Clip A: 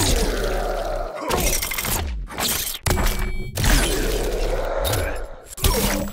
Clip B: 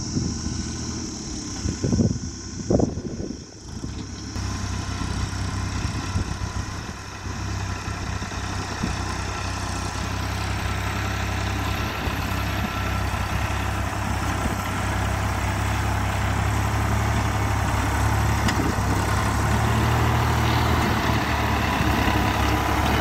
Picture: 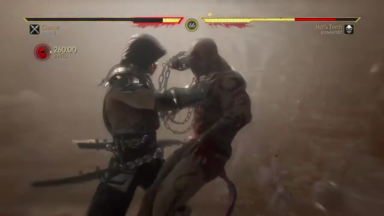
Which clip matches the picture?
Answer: A